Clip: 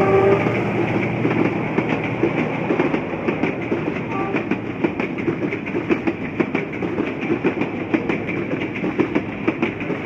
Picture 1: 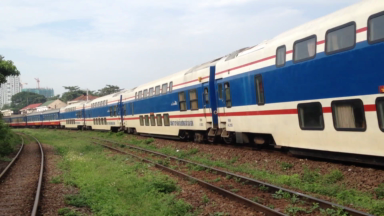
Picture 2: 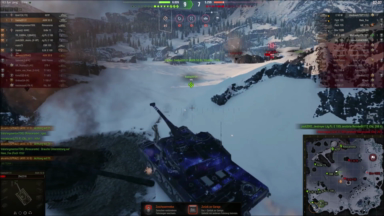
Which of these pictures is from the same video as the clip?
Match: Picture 1